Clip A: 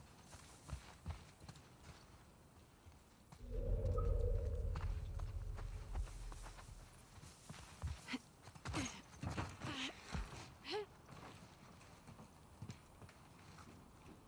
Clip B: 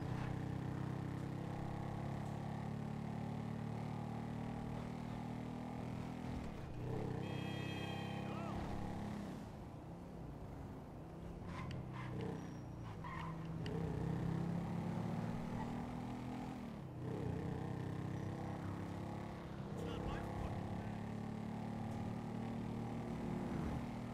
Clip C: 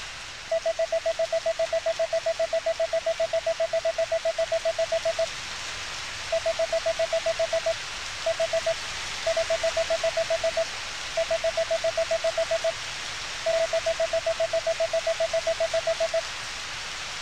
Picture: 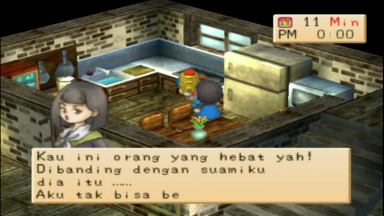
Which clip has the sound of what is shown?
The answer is C